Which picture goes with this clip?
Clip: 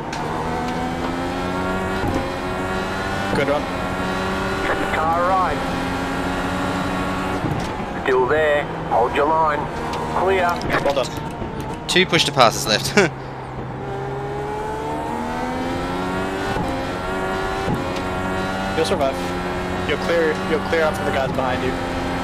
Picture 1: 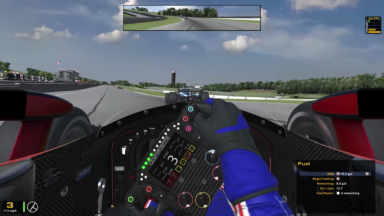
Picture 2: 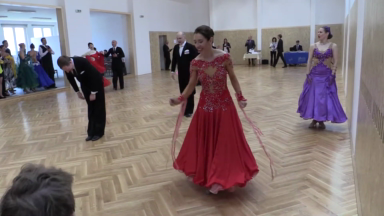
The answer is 1